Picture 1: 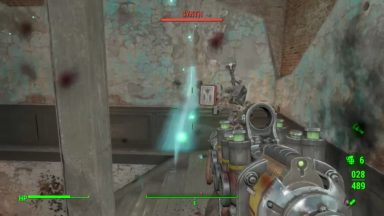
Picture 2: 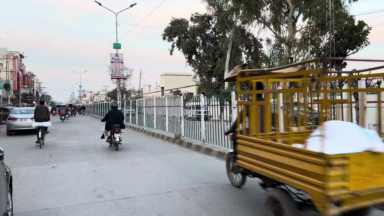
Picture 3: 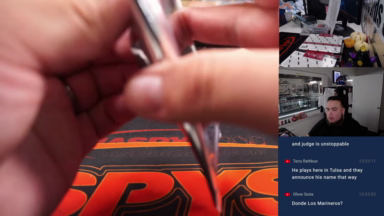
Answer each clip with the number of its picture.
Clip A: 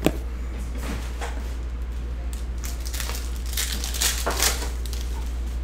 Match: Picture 3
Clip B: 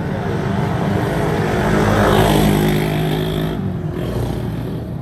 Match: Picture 2